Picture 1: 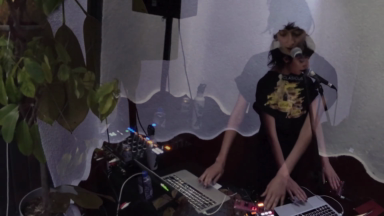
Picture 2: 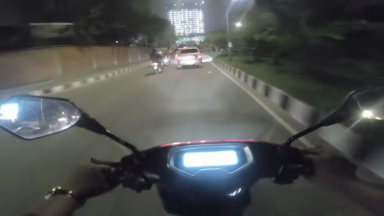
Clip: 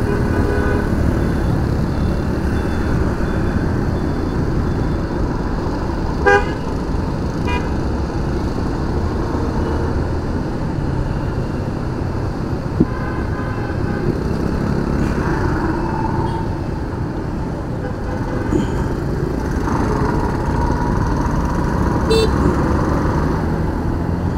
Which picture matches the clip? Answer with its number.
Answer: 2